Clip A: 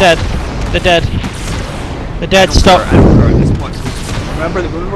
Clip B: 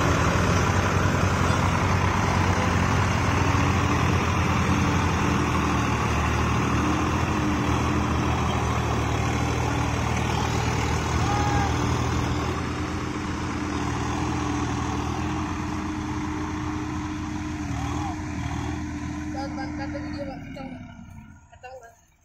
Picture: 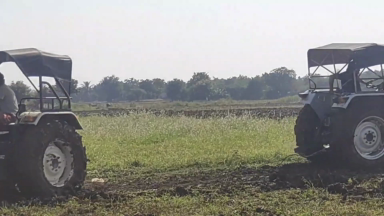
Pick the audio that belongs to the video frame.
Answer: B